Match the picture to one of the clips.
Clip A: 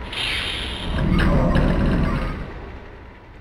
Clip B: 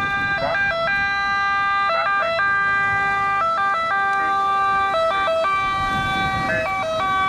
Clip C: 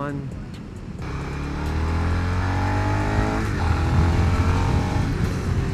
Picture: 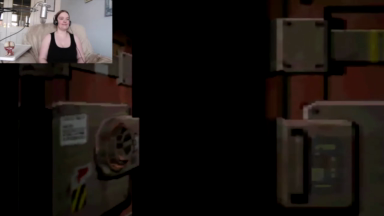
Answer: A